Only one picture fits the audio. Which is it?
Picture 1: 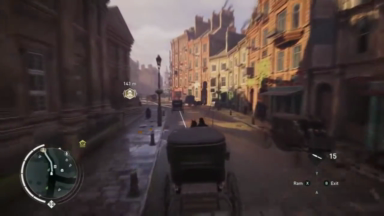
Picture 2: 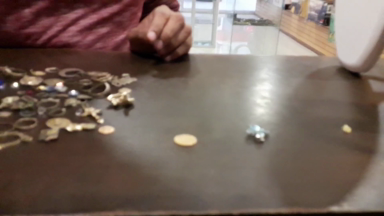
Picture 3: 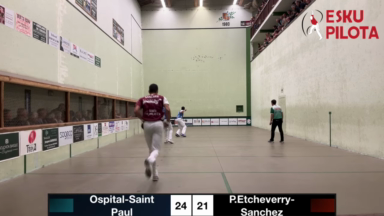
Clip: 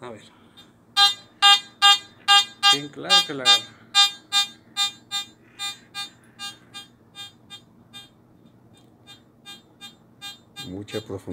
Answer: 2